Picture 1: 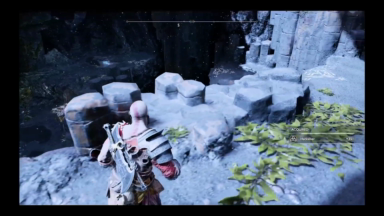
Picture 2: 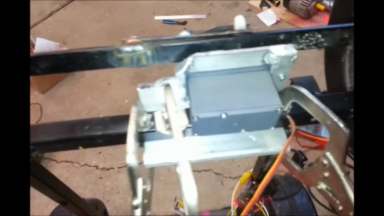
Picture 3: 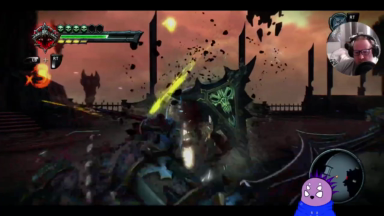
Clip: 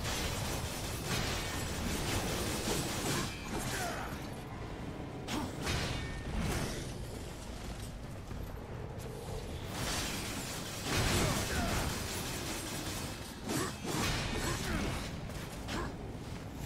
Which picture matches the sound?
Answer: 3